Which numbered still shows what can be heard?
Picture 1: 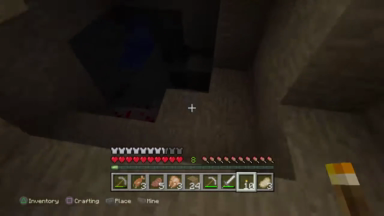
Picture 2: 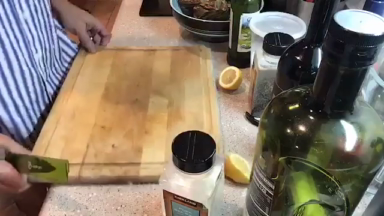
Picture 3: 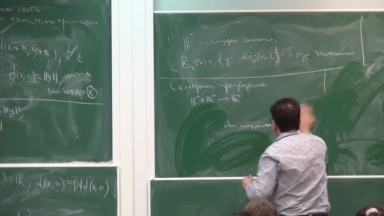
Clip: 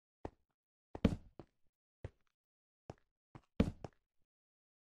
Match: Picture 1